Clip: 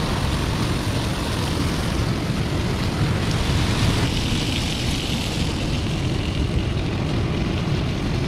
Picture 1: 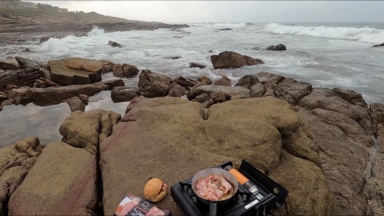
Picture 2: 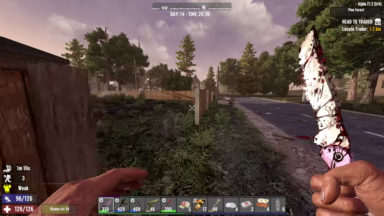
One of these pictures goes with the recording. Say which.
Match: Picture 1